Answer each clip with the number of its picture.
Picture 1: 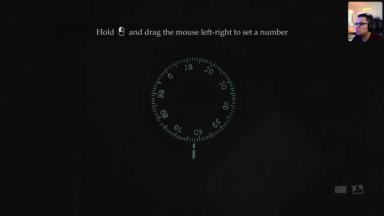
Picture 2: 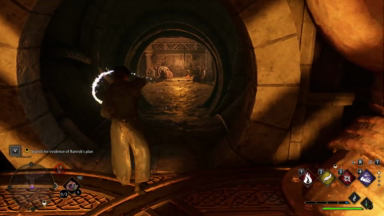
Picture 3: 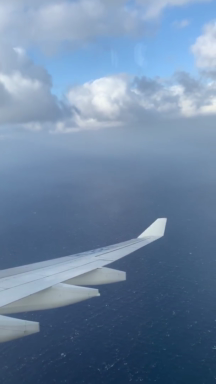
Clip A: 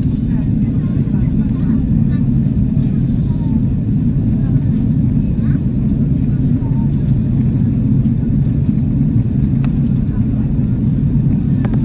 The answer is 3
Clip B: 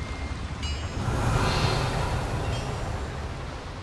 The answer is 2